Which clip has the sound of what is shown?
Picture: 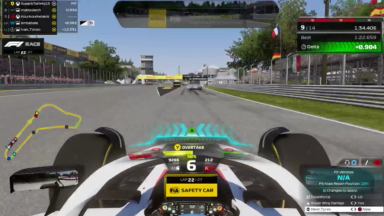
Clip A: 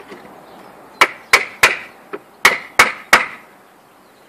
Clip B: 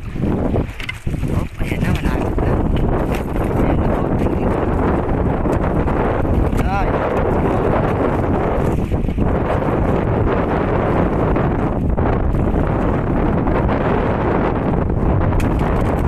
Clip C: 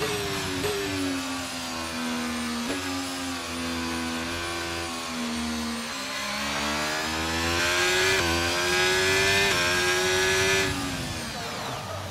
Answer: C